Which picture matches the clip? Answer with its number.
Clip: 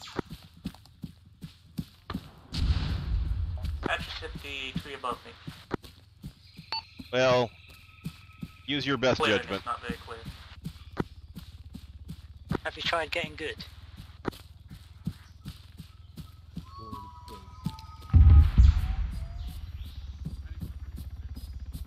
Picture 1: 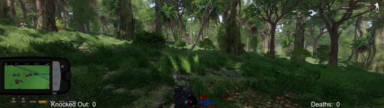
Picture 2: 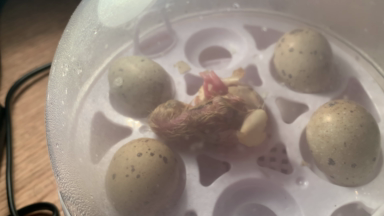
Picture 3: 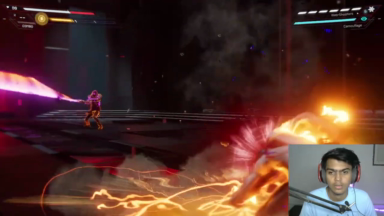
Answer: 1